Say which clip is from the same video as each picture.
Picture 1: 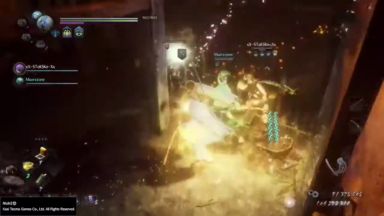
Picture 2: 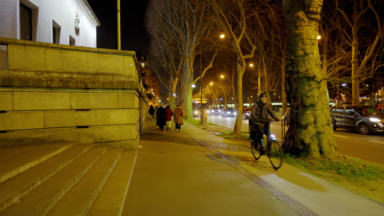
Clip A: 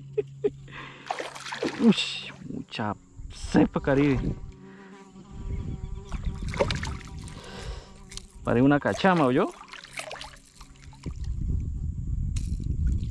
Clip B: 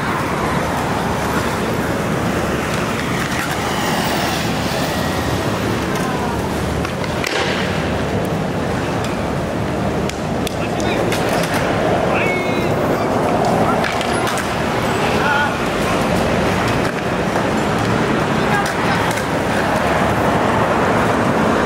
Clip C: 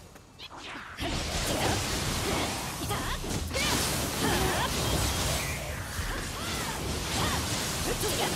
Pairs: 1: C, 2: B